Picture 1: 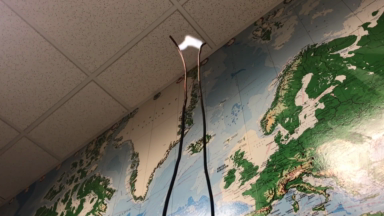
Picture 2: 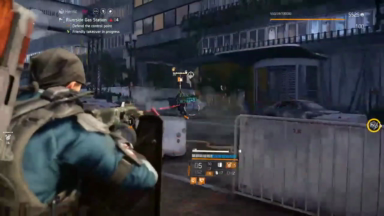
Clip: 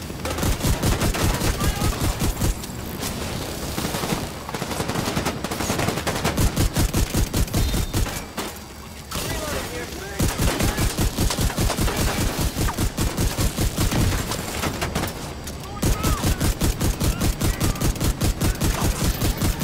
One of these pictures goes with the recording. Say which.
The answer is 2